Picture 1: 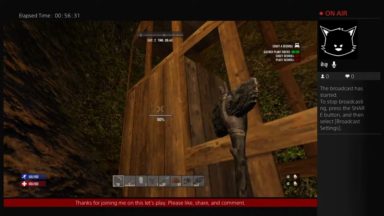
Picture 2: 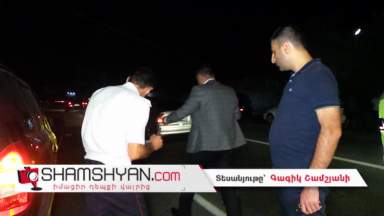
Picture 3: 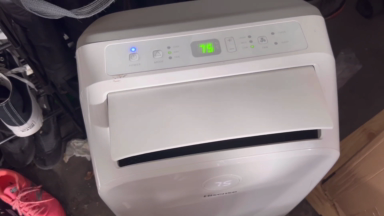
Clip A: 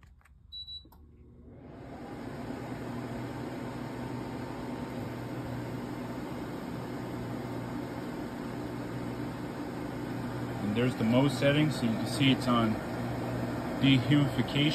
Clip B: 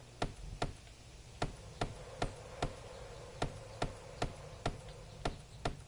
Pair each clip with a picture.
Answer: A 3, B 1